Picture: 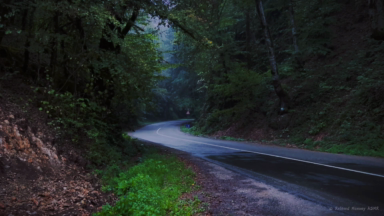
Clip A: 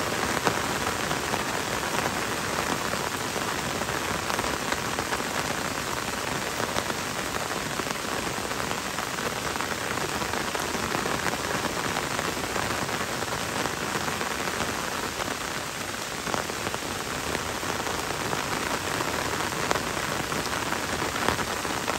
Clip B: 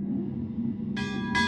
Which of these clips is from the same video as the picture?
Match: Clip A